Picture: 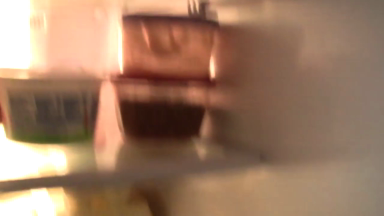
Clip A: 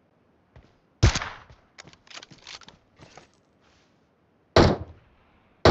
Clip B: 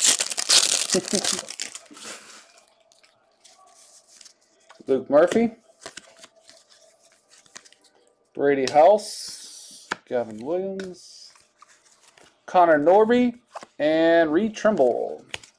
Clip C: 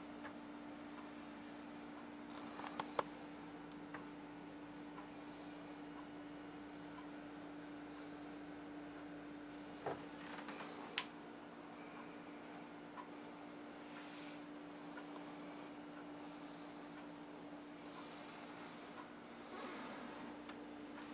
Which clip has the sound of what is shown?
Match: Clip C